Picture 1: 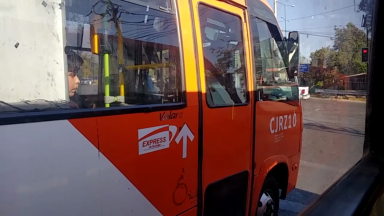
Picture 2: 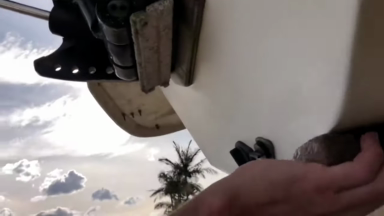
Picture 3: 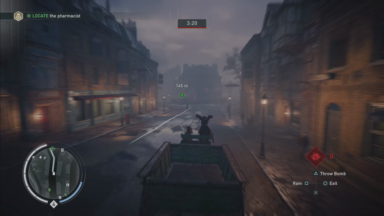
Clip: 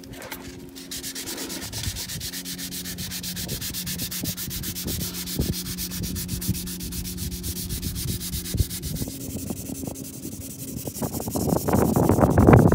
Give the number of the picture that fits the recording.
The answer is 2